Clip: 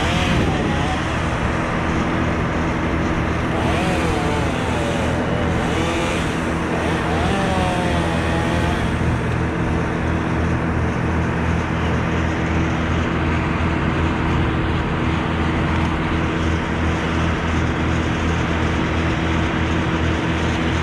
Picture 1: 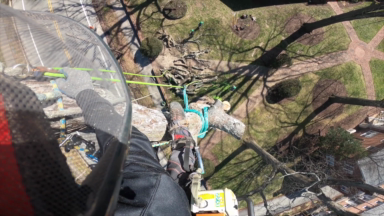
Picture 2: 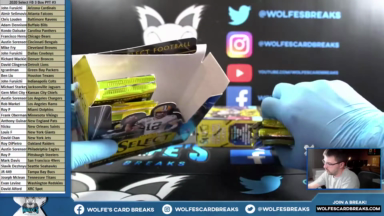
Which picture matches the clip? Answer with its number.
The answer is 1